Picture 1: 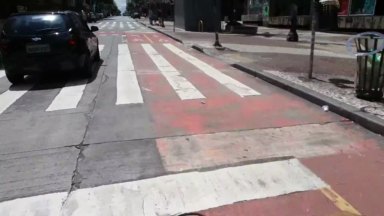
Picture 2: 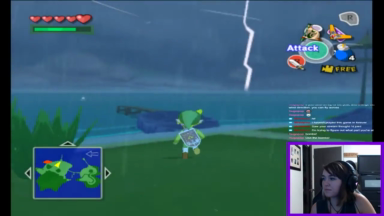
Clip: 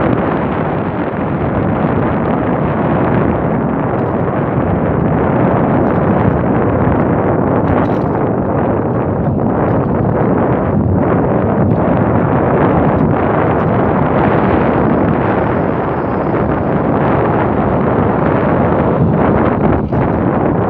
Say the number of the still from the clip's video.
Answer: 1